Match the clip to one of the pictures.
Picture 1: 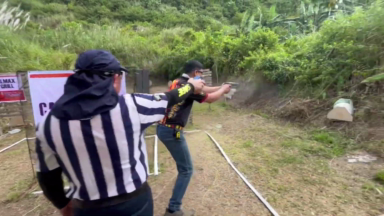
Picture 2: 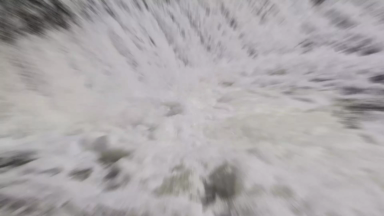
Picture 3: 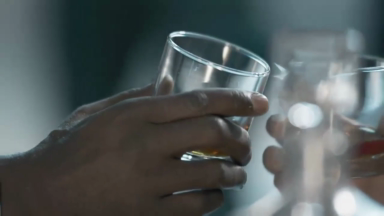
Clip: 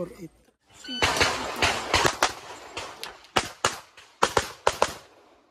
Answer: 1